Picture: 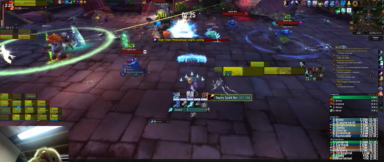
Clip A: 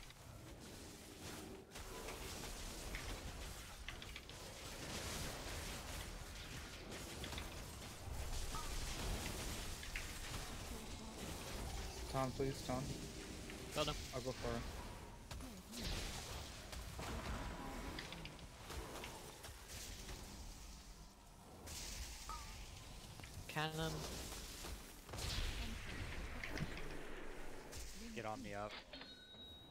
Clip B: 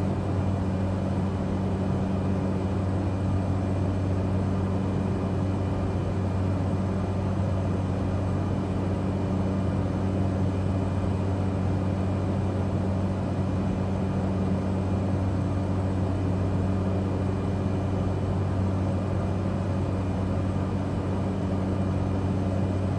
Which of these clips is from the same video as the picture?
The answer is A